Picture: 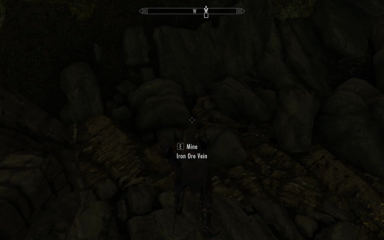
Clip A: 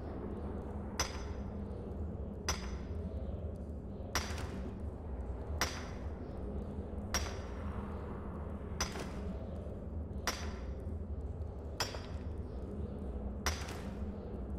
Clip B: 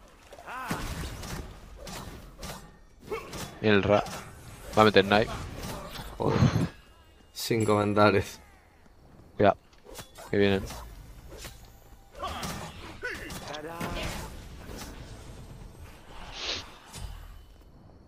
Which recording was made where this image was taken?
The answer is A